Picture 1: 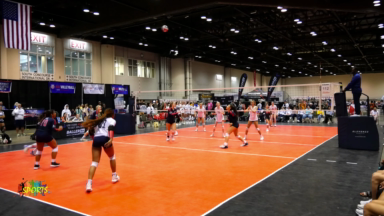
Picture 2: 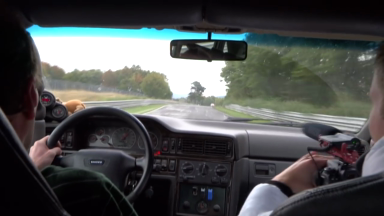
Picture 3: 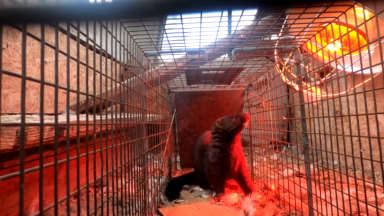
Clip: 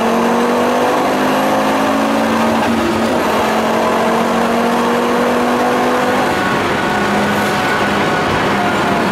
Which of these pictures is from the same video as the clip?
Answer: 2